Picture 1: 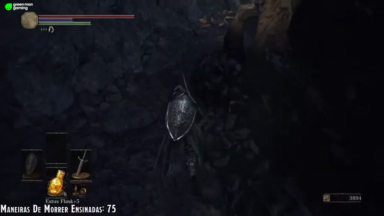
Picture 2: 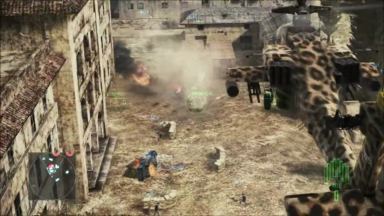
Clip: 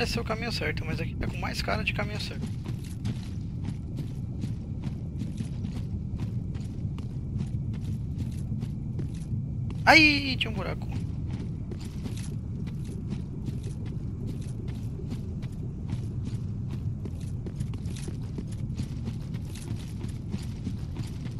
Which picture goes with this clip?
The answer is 1